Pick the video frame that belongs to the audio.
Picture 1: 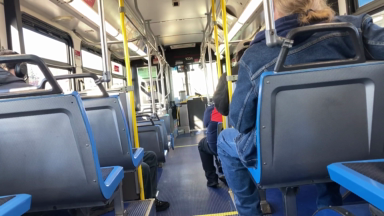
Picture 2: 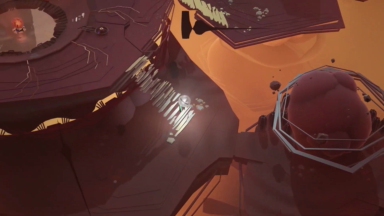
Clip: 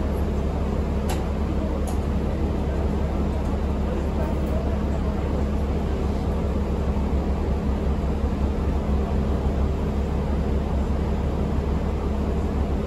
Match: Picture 1